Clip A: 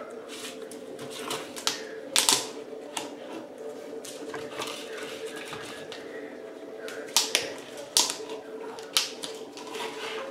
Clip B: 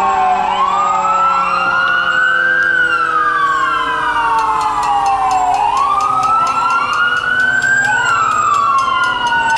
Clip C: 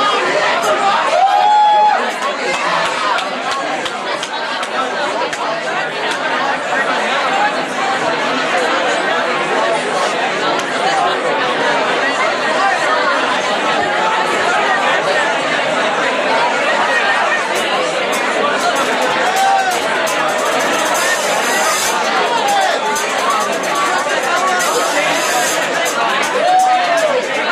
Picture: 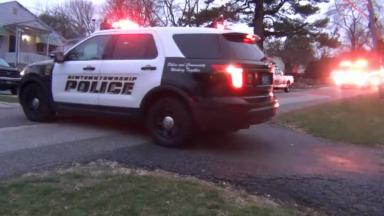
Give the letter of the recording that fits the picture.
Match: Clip B